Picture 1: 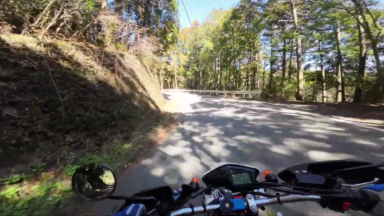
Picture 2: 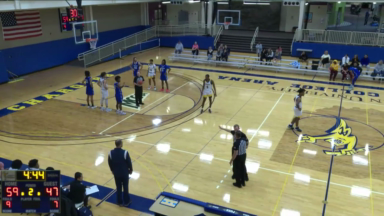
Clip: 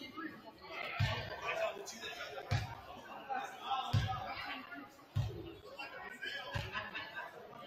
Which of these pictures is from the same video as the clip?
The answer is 2